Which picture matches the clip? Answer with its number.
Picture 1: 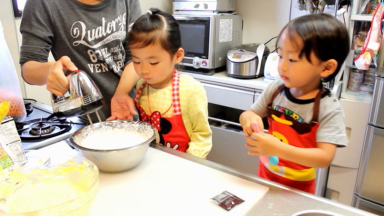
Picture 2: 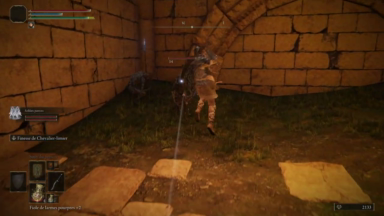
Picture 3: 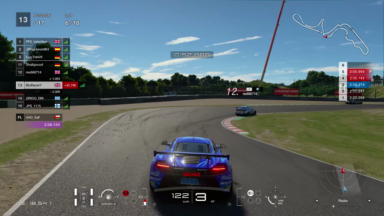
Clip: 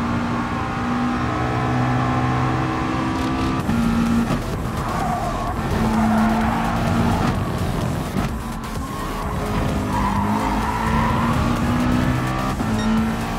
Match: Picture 3